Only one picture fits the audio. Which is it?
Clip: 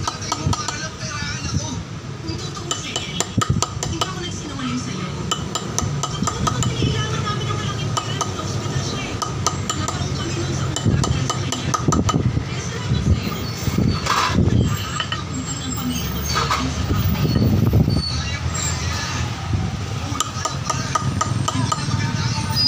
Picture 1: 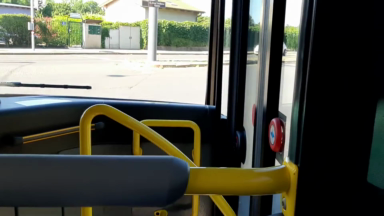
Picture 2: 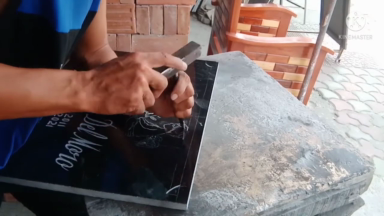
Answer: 2